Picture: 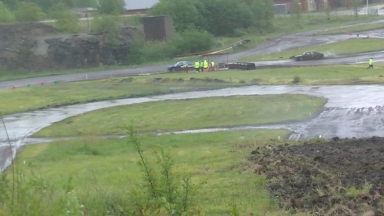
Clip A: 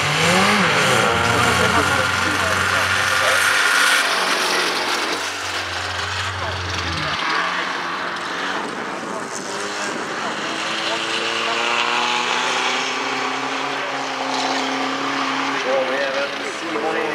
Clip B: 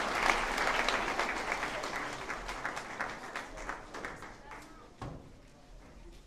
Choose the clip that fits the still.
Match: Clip A